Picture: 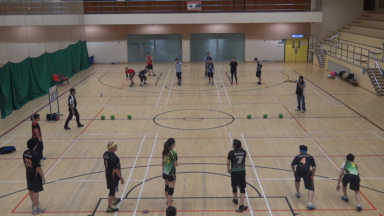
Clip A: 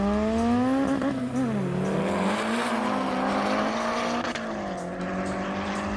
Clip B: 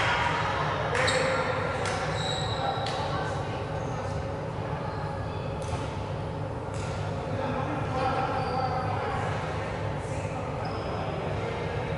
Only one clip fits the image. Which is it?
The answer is B